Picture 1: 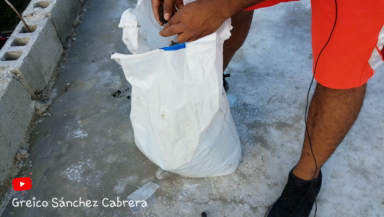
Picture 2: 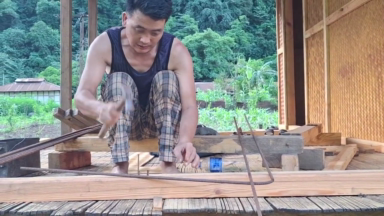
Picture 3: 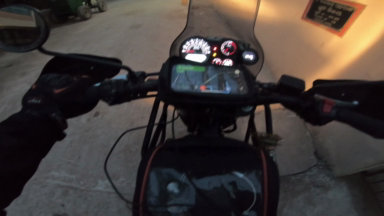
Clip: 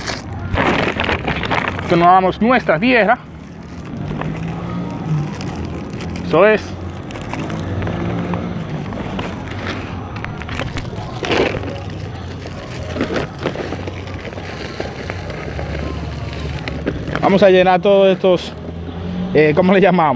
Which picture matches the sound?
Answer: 1